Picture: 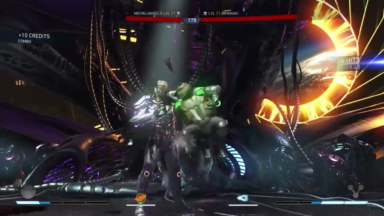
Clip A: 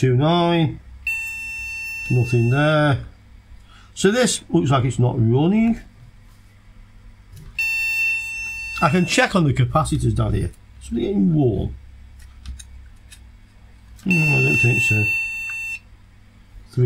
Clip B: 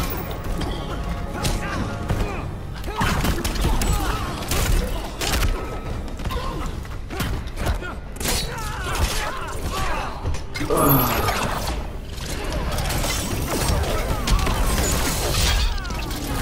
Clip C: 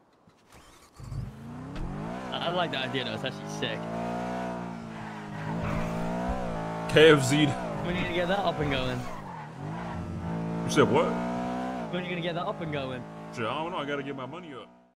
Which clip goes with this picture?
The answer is B